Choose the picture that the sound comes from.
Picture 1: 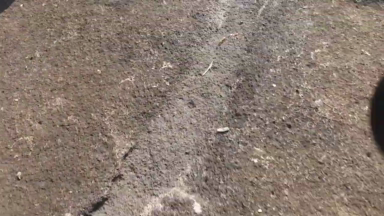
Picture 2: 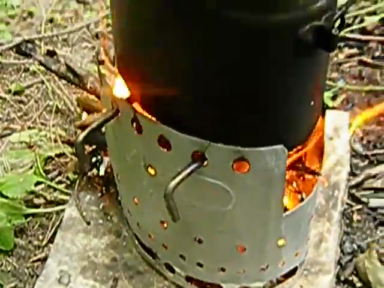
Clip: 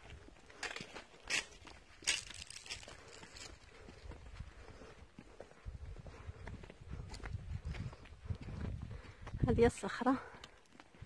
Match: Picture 1